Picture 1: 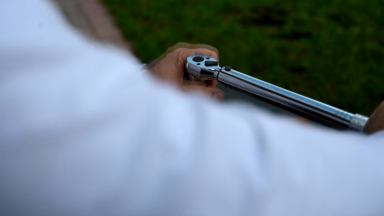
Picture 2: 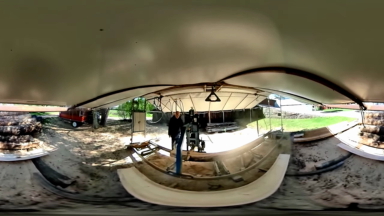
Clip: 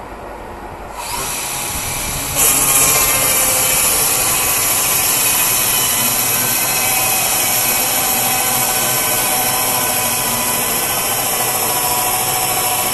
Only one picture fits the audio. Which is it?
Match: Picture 2